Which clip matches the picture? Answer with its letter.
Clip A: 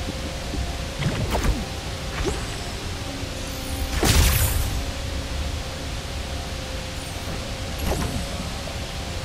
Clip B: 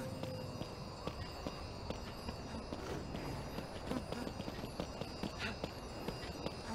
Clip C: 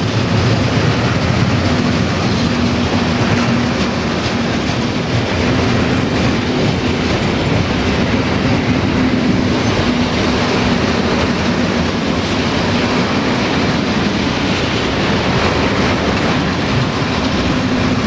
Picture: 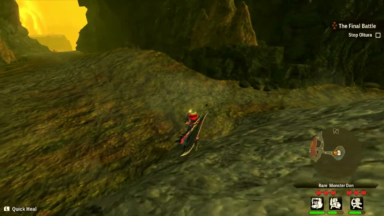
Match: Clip B